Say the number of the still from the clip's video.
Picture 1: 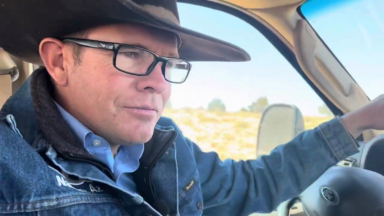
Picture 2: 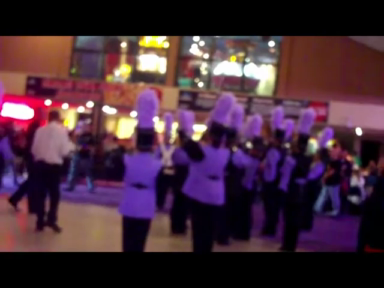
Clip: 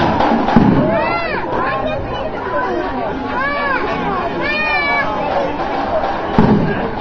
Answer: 2